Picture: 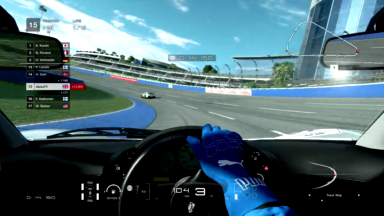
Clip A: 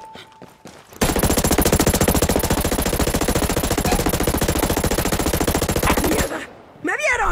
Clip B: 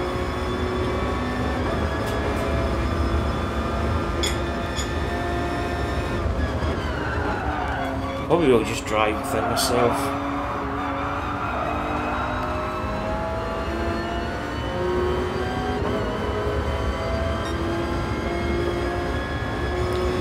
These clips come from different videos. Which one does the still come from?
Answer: B